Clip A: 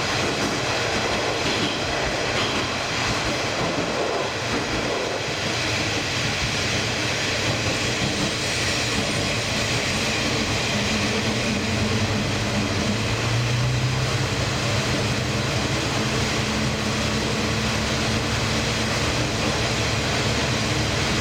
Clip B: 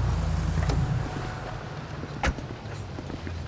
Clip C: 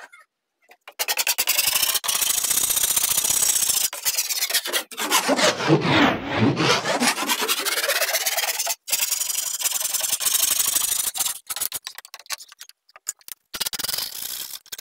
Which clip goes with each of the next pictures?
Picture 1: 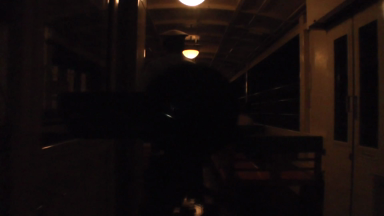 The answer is A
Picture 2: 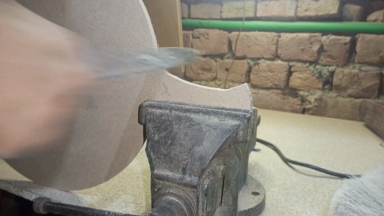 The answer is C